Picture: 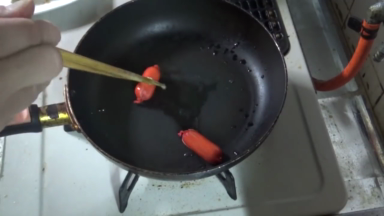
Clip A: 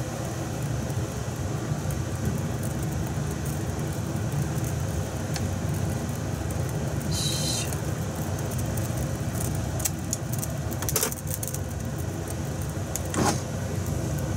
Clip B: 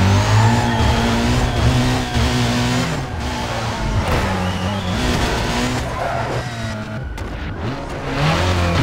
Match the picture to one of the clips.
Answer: A